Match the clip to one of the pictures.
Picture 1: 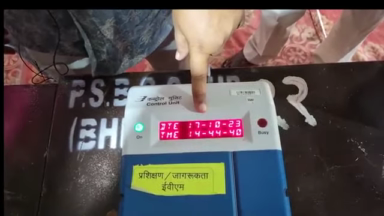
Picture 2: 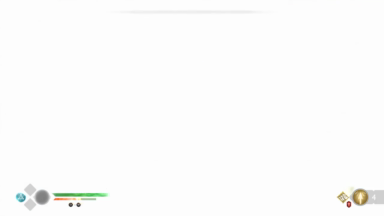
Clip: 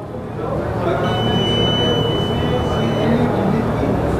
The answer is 1